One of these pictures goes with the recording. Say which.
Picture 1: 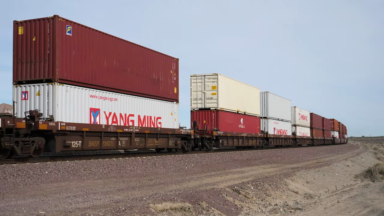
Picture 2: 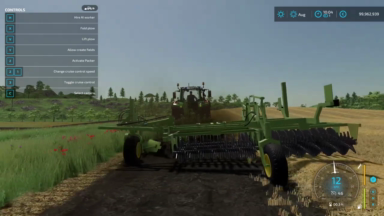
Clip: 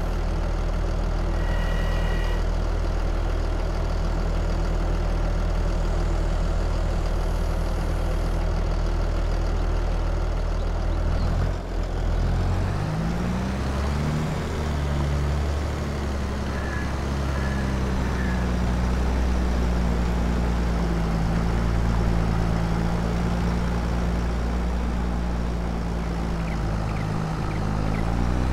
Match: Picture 2